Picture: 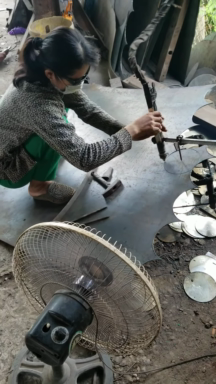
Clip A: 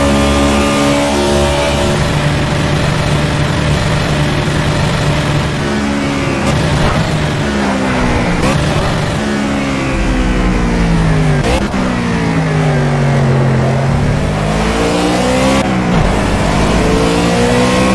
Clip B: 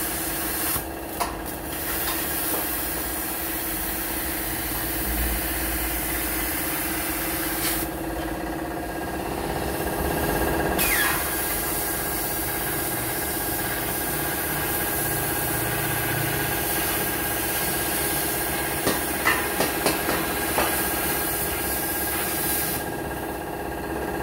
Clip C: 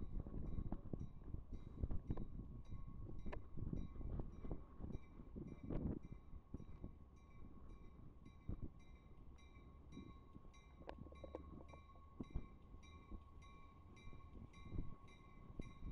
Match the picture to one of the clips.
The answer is B